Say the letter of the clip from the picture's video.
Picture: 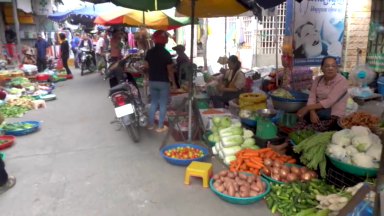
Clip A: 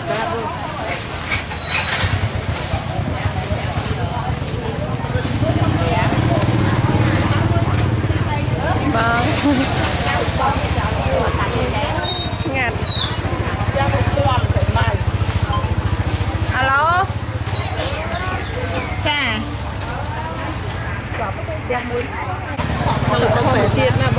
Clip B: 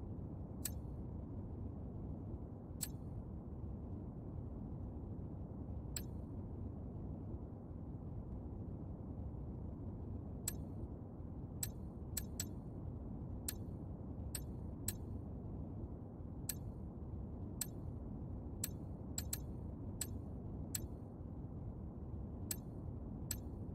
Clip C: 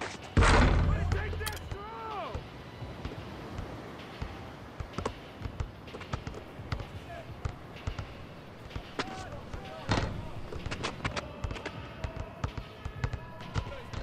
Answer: A